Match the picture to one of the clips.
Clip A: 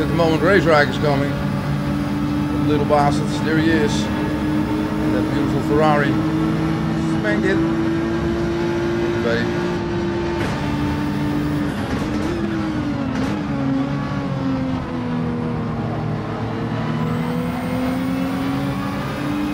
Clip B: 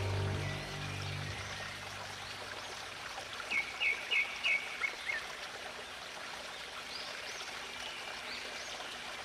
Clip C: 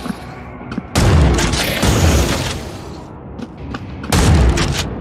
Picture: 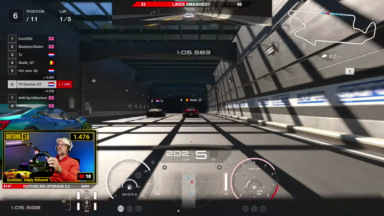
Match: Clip A